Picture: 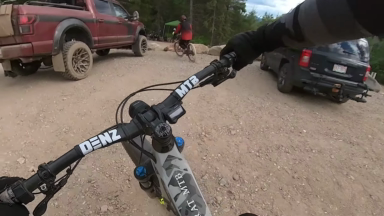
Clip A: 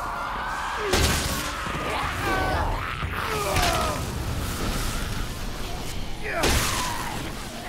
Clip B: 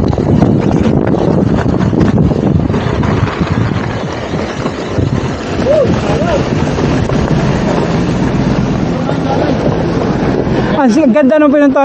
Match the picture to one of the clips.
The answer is B